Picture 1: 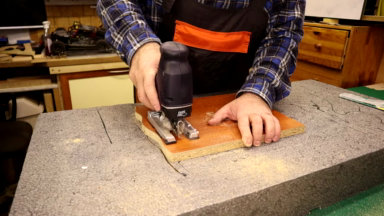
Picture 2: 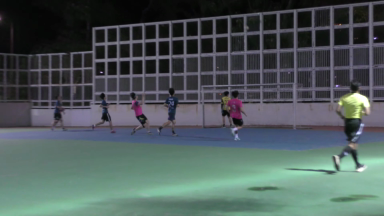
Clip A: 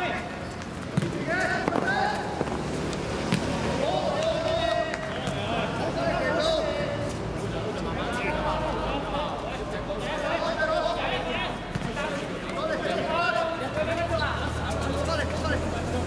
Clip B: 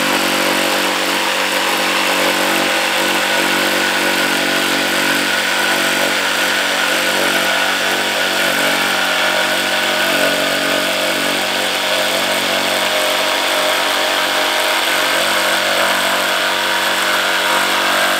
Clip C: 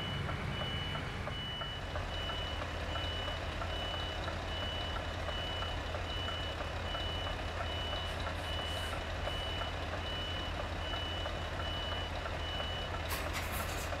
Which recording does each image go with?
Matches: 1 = B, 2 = A